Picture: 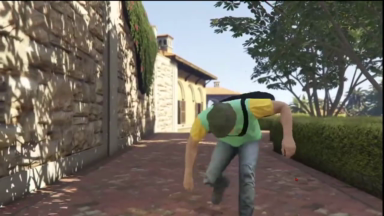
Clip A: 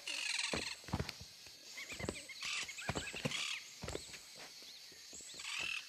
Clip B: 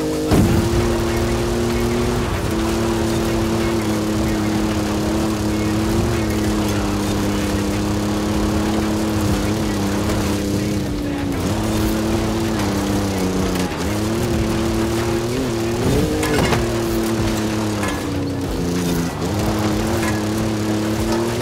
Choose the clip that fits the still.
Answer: A